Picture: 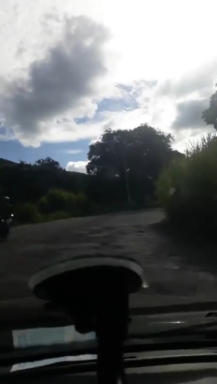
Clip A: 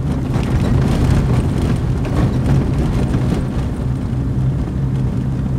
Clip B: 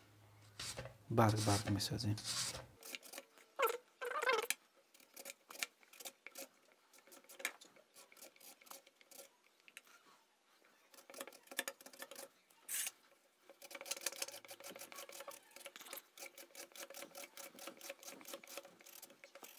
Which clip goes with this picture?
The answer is A